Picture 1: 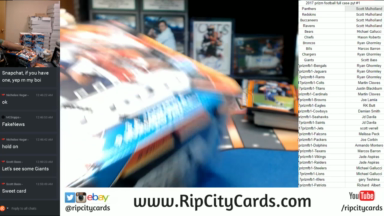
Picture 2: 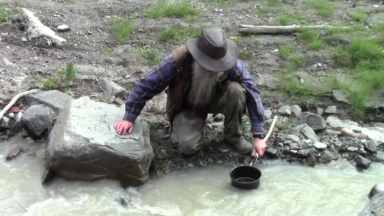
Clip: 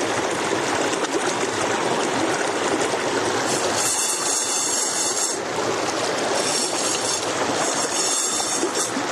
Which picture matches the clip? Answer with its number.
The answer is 2